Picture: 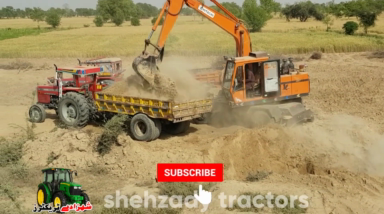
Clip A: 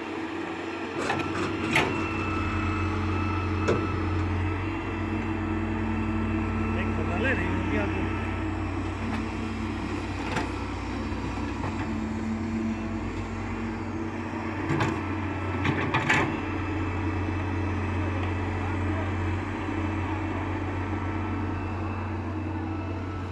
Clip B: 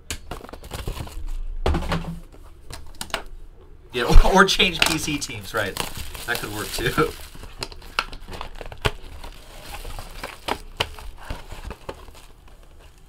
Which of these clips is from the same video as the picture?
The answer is A